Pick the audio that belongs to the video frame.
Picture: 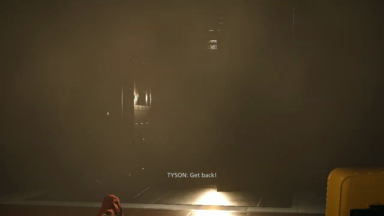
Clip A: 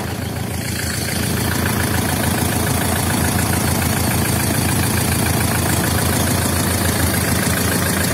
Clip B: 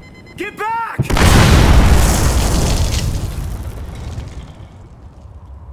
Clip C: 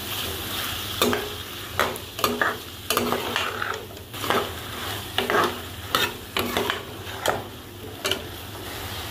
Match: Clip B